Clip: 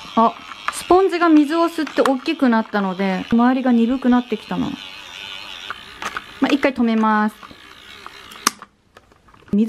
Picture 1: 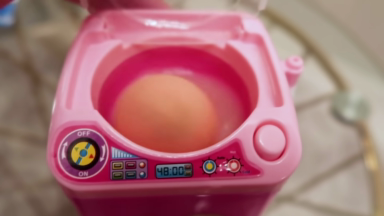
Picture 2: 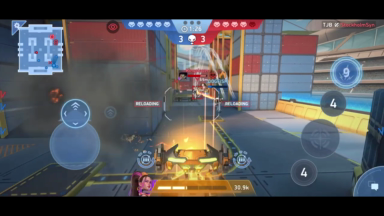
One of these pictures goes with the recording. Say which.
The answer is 1